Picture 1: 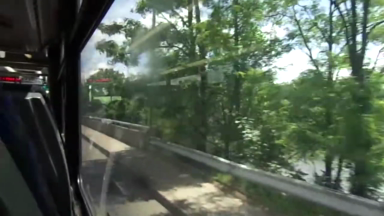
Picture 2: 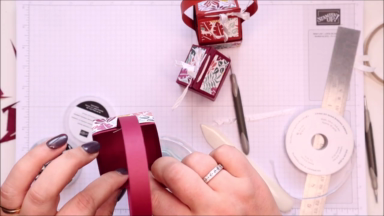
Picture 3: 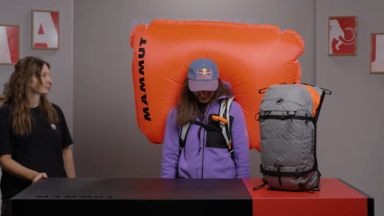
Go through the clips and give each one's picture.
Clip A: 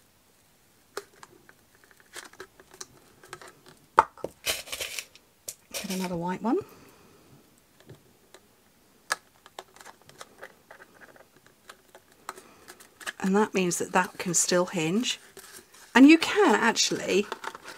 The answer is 2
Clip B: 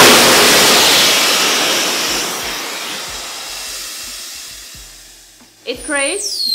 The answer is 3